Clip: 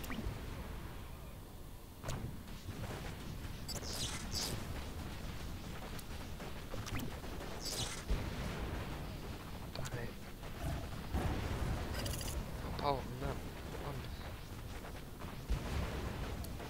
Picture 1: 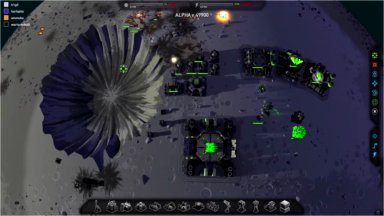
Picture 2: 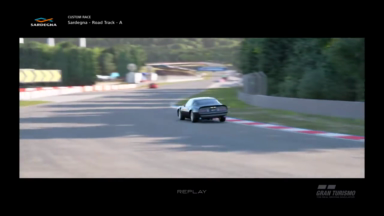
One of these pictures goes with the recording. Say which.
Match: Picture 1